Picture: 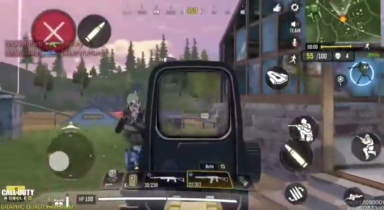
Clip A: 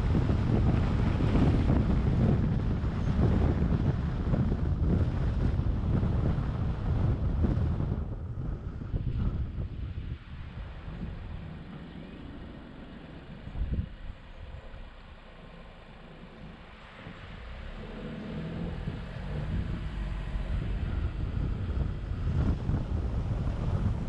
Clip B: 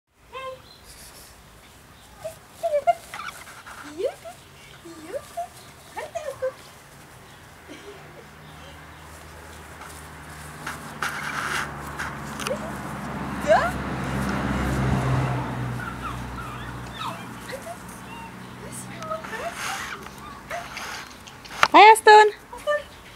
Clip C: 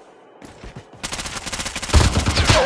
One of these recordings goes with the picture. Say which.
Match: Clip C